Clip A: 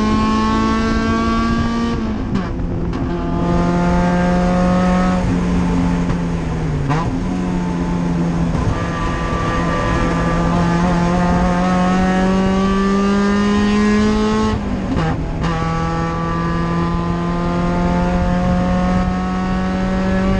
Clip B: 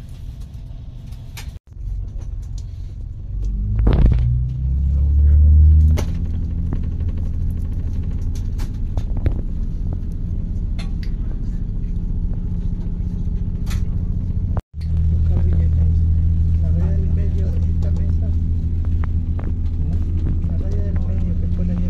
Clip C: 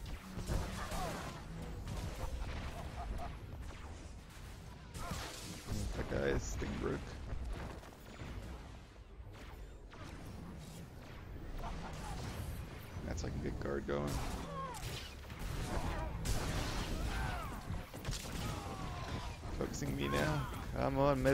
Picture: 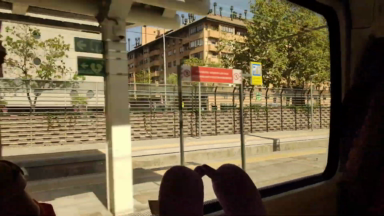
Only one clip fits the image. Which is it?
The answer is B